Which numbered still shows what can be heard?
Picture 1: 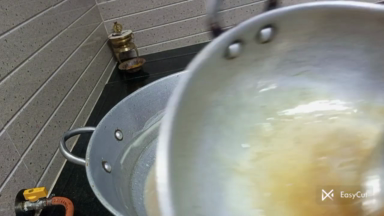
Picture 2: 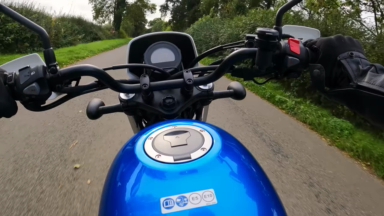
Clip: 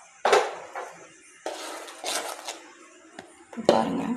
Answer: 1